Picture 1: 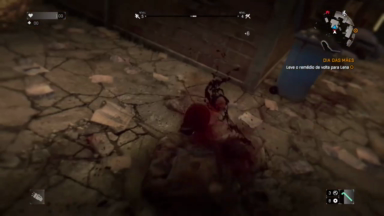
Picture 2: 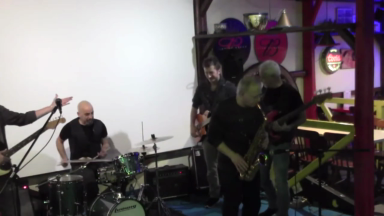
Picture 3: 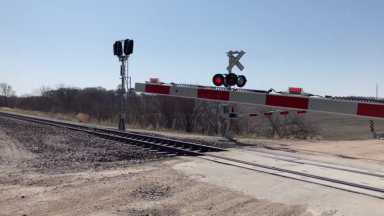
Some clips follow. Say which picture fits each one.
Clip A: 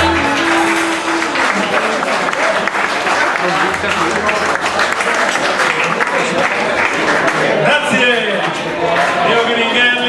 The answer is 2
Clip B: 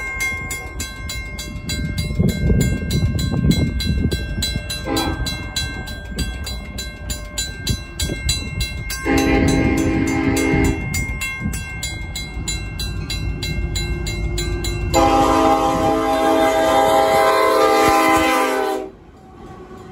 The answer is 3